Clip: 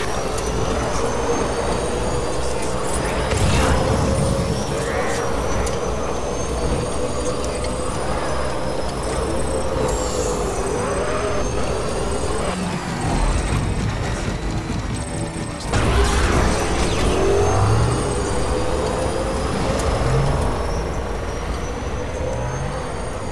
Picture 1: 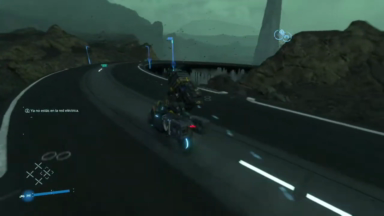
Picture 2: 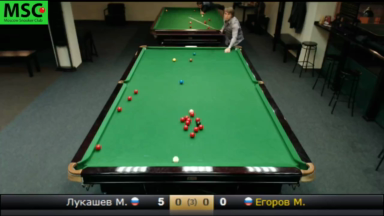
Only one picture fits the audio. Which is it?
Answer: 1